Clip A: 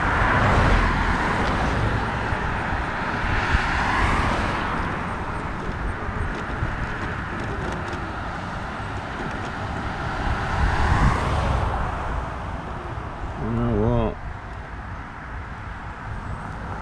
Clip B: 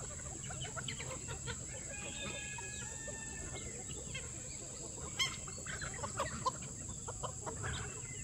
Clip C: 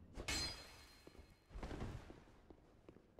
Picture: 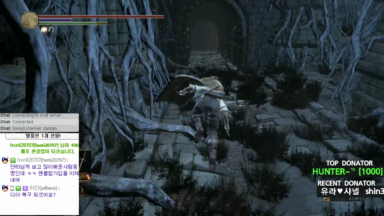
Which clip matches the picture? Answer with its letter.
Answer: C